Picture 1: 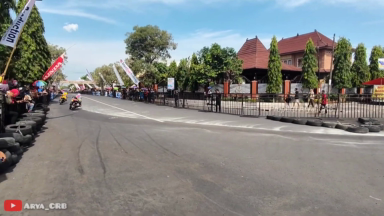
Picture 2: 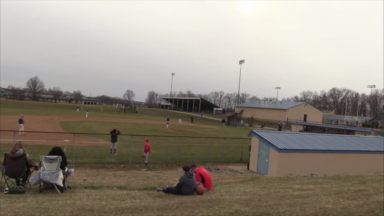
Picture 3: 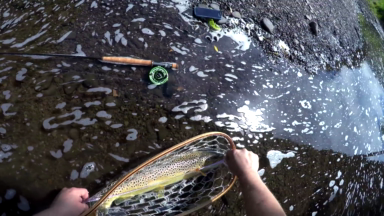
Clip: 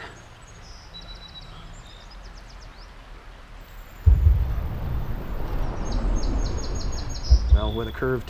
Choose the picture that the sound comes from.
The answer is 3